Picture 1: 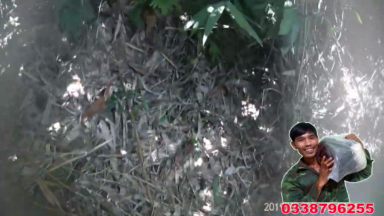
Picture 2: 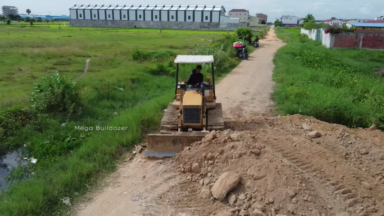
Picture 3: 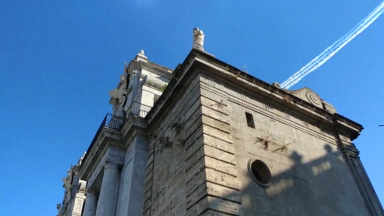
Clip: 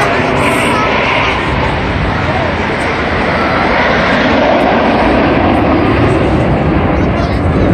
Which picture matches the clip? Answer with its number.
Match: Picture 3